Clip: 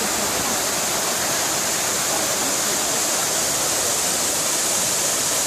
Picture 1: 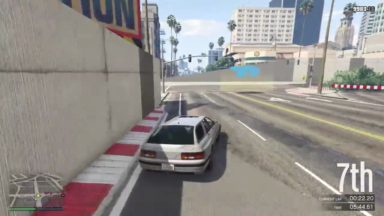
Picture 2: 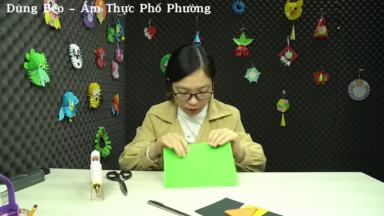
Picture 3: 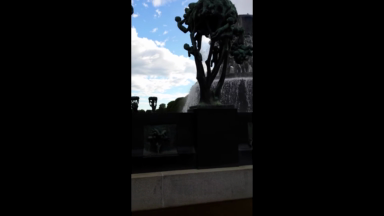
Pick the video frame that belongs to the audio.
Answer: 3